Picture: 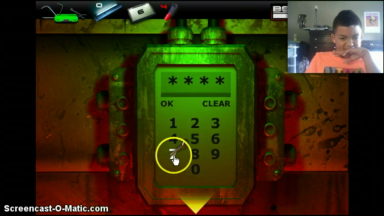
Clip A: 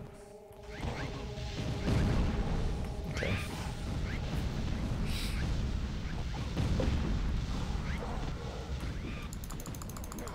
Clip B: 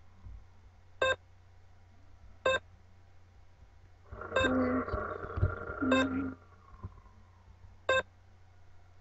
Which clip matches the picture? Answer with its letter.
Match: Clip B